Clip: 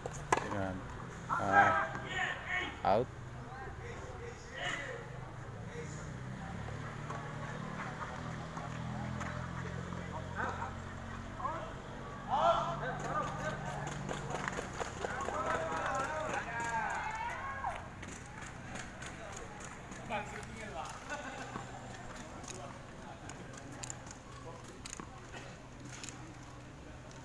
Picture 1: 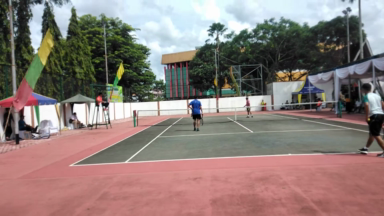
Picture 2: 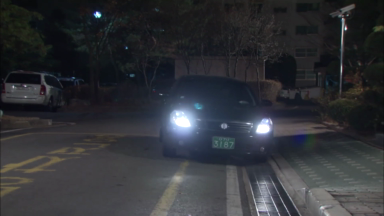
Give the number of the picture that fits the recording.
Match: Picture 1